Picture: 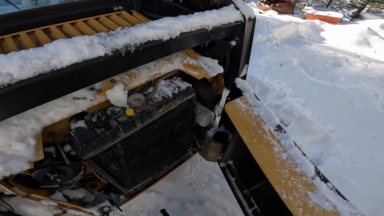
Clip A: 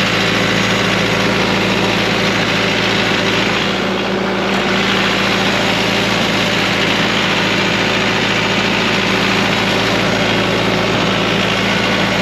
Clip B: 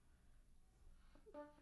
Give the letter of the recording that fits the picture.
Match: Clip A